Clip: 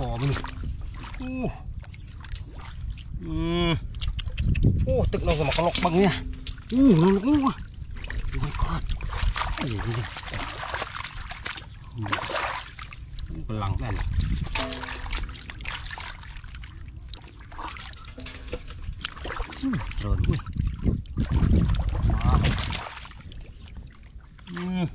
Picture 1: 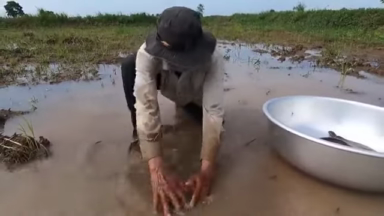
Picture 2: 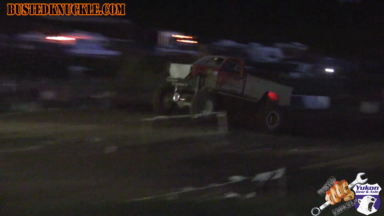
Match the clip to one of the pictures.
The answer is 1